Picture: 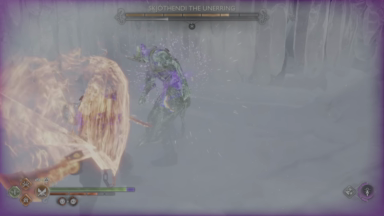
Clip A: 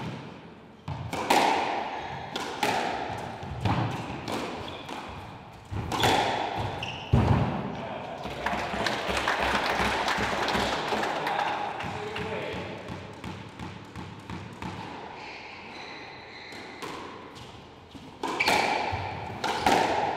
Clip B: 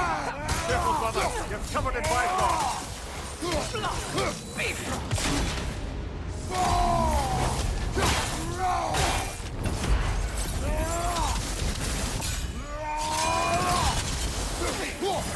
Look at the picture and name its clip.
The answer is B